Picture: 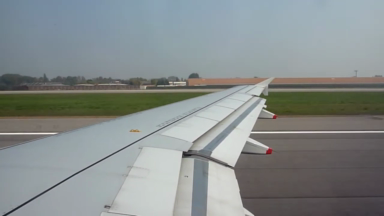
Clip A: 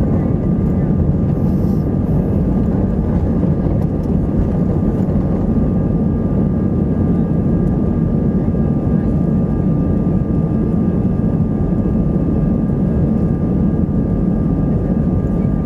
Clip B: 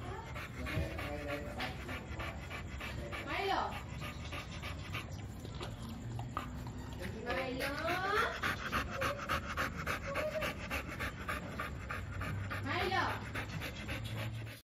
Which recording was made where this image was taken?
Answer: A